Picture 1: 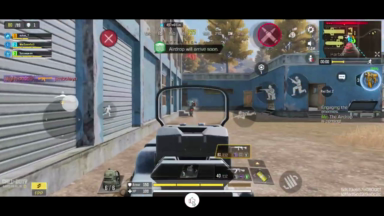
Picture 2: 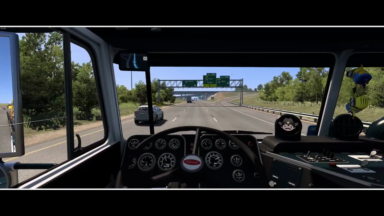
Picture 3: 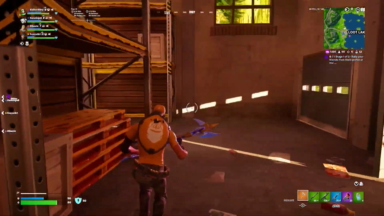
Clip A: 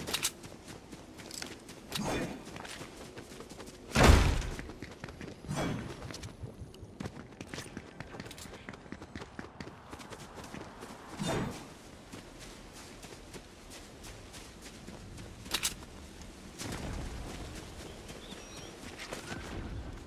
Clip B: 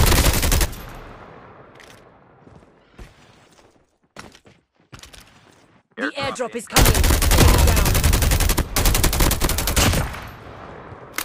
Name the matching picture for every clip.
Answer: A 3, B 1